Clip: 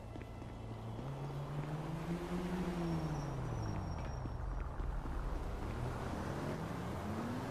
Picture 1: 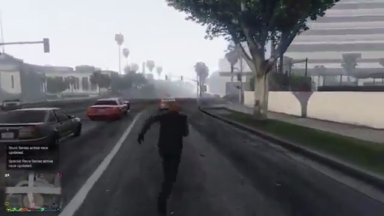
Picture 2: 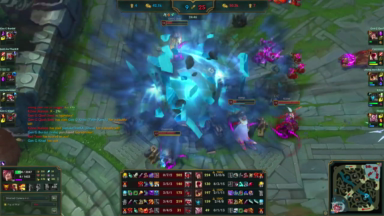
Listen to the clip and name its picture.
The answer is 1